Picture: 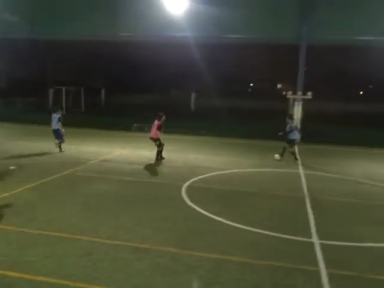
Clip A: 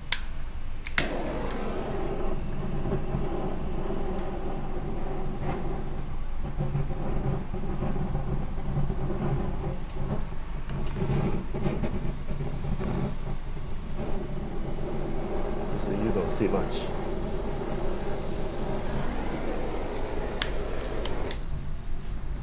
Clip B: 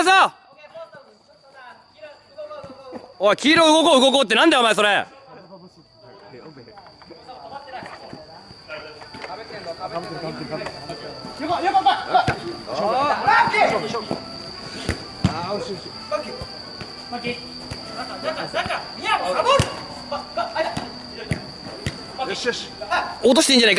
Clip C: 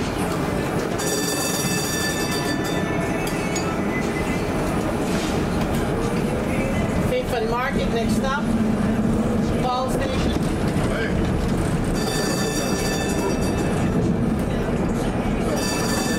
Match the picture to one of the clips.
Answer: B